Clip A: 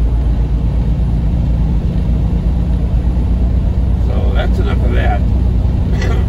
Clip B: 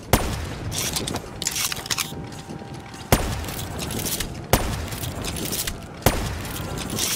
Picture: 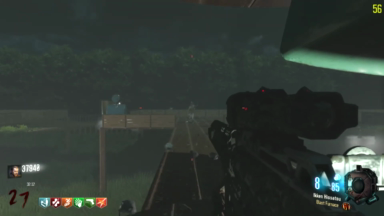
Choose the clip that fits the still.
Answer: B